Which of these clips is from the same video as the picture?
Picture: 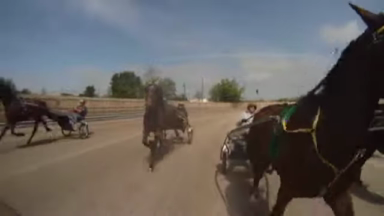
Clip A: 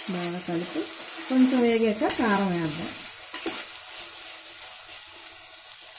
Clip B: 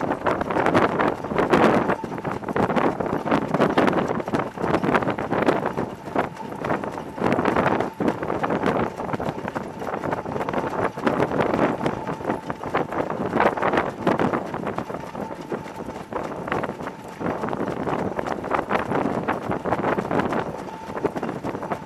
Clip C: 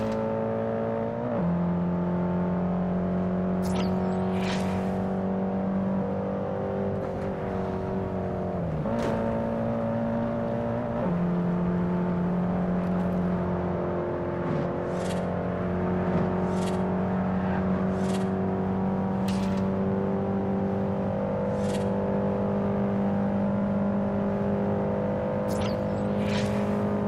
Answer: B